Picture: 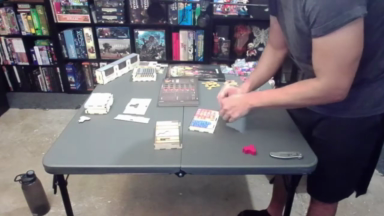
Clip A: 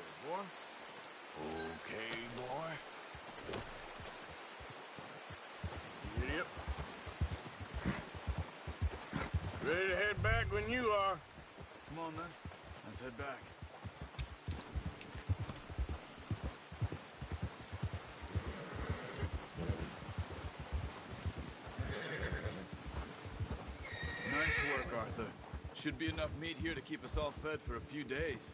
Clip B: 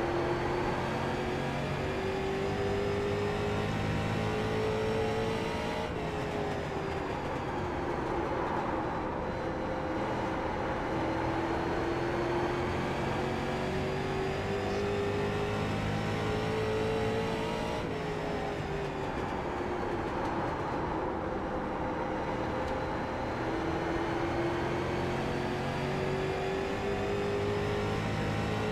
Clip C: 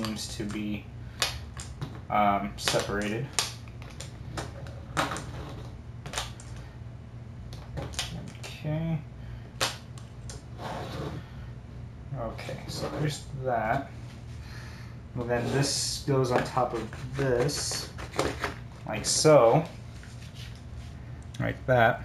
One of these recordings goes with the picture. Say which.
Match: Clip C